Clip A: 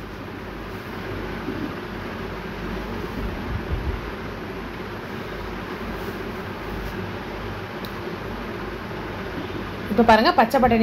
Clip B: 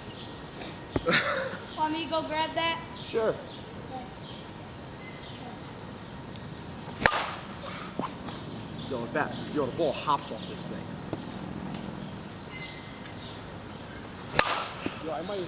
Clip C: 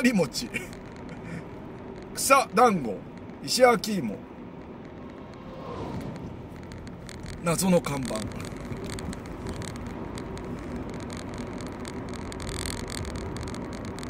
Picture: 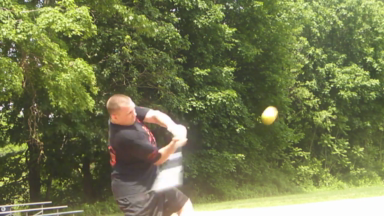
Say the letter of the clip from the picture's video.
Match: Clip B